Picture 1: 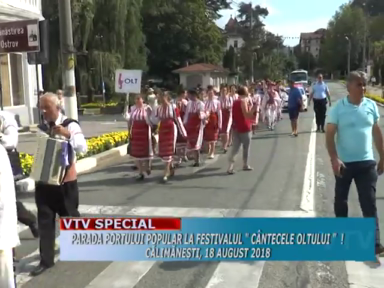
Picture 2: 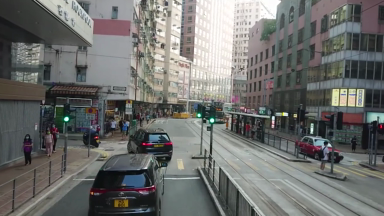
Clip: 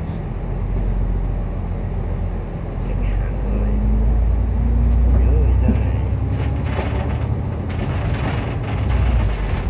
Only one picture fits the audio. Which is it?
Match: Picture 2